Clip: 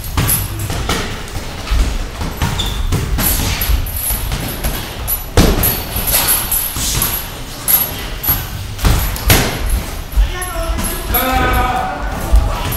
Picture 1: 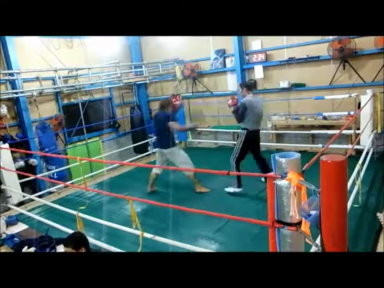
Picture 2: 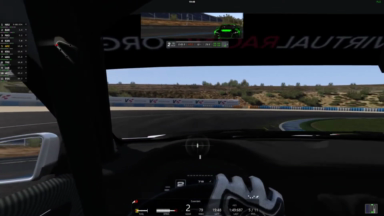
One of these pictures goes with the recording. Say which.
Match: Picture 1